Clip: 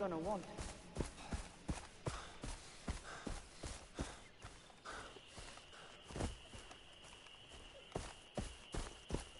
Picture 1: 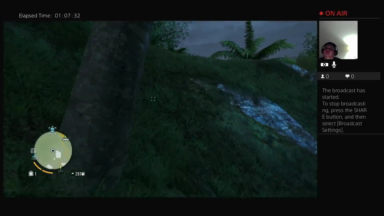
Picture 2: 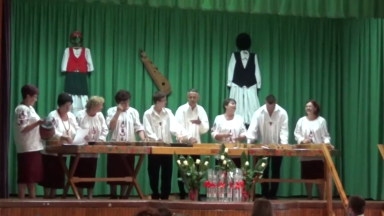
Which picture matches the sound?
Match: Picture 1